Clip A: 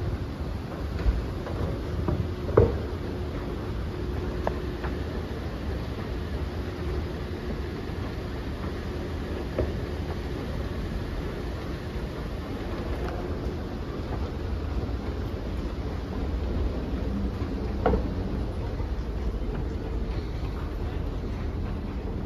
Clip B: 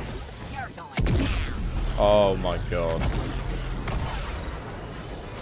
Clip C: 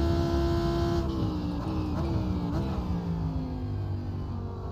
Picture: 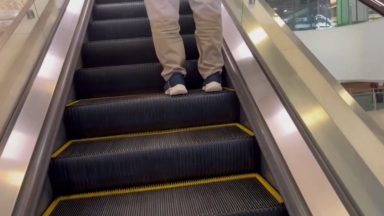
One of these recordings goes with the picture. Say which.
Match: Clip A